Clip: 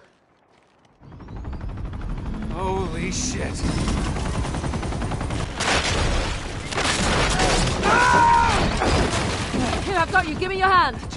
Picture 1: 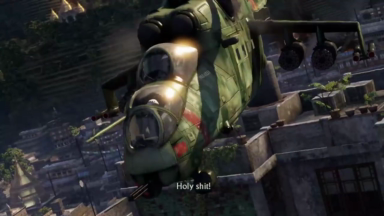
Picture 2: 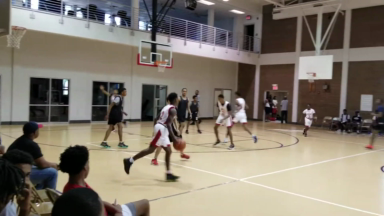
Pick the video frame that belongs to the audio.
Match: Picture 1